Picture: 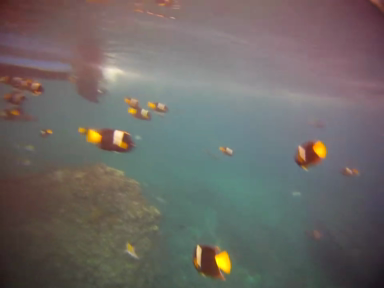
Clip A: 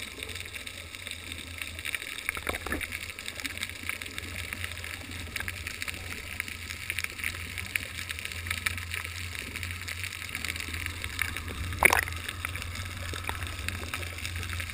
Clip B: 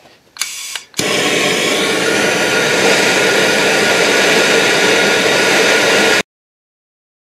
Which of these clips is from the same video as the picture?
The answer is A